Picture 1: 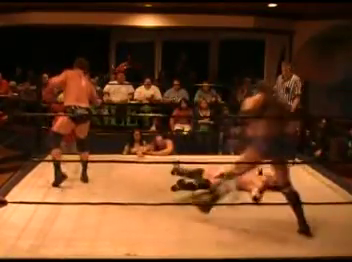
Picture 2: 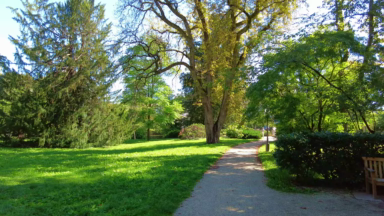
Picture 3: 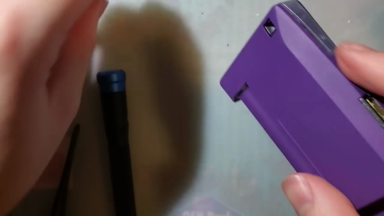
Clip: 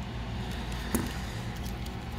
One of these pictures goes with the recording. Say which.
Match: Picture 3